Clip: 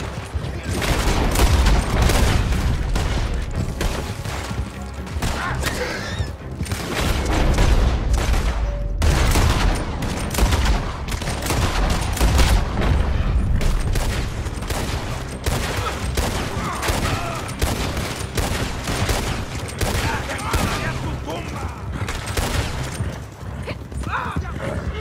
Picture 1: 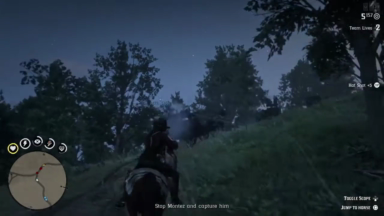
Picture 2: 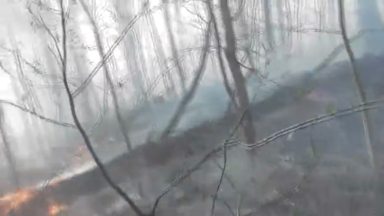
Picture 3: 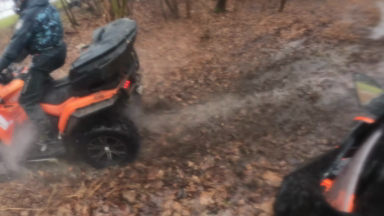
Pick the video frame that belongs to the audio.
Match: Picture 1